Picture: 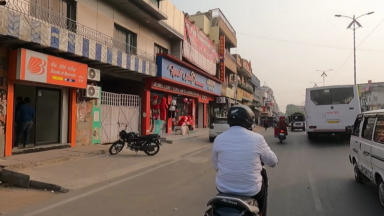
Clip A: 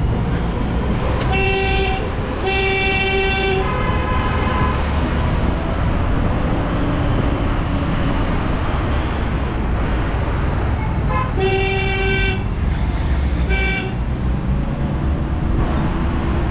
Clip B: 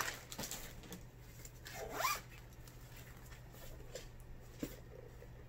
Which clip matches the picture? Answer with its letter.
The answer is A